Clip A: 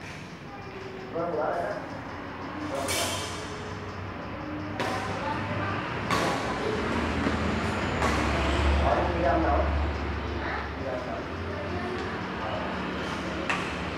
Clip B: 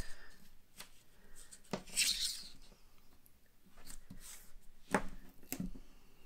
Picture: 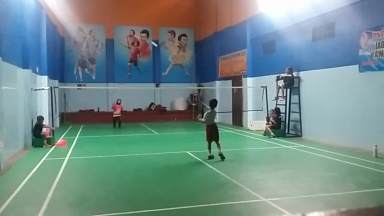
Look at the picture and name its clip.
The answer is A